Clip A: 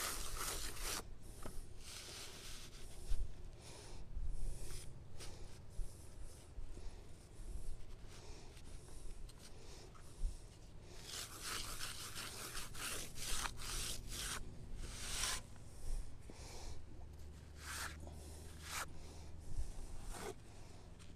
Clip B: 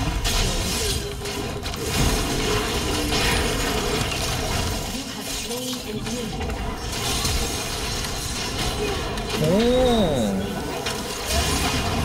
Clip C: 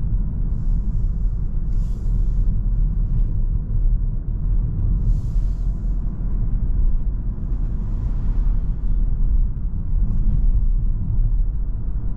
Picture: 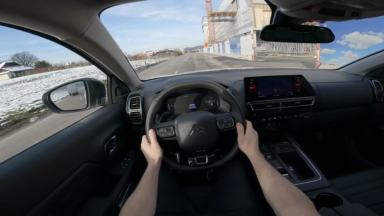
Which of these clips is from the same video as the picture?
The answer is C